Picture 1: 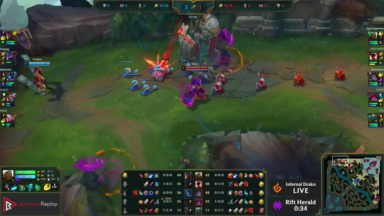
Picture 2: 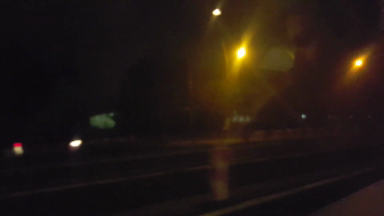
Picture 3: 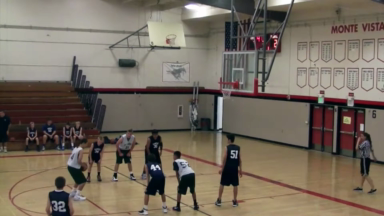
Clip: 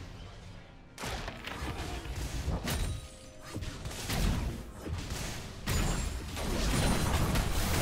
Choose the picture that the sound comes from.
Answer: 1